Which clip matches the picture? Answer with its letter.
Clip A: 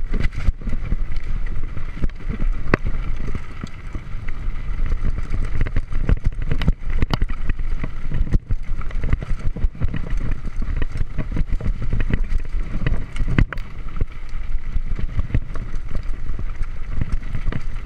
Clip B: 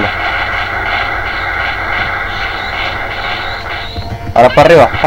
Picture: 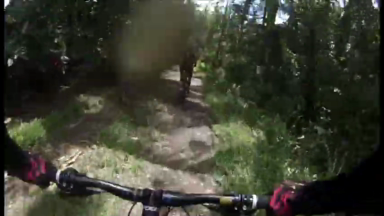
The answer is A